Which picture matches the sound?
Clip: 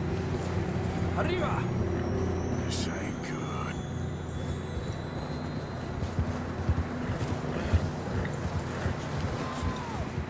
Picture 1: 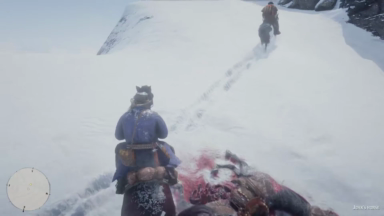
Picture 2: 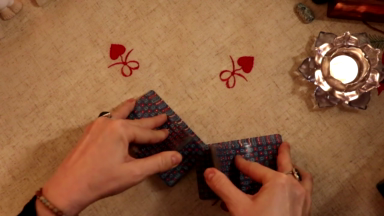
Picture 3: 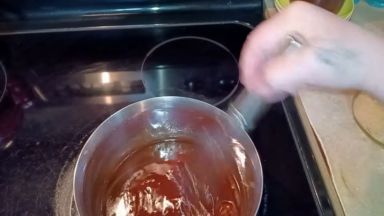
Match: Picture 1